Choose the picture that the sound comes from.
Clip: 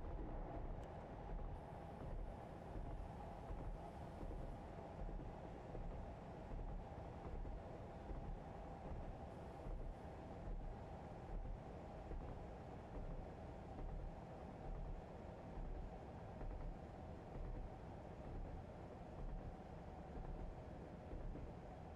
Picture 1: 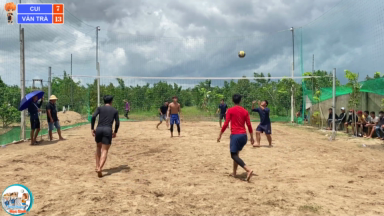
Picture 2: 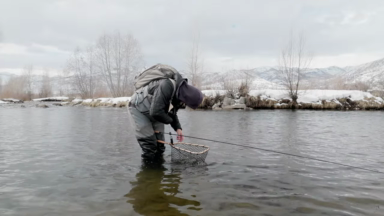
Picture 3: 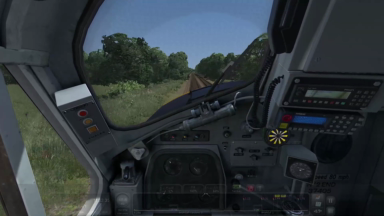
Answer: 3